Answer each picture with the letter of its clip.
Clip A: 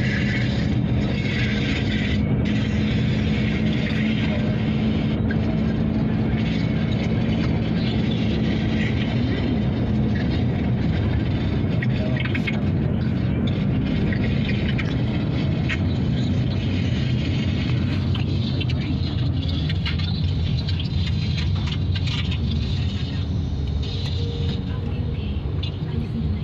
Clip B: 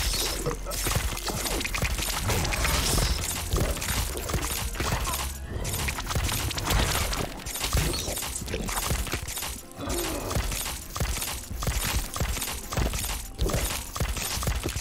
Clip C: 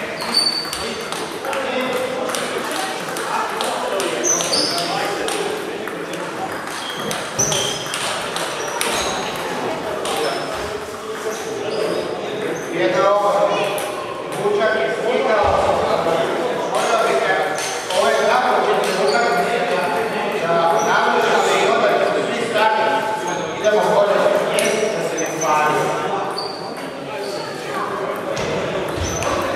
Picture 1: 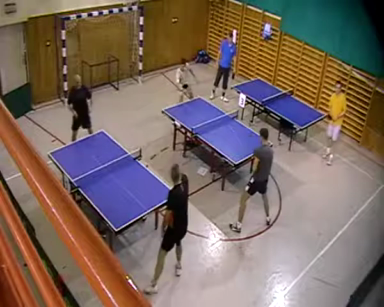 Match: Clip C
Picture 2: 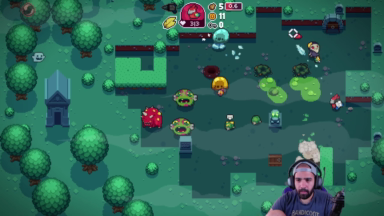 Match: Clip B